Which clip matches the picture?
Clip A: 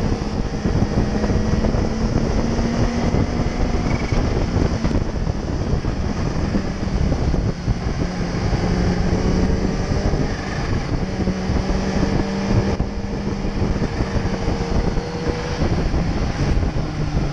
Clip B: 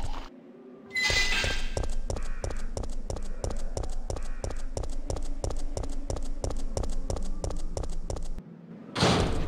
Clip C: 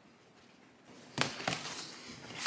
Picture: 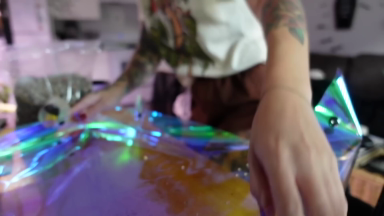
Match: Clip C